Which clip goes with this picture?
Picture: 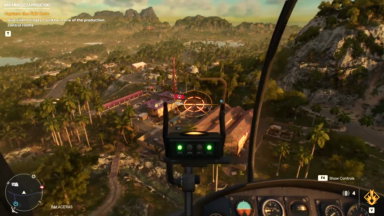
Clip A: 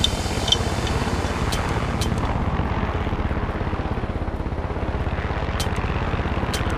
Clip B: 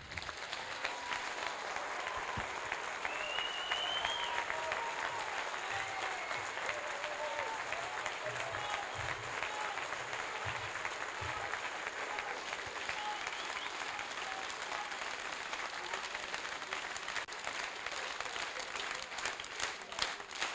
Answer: A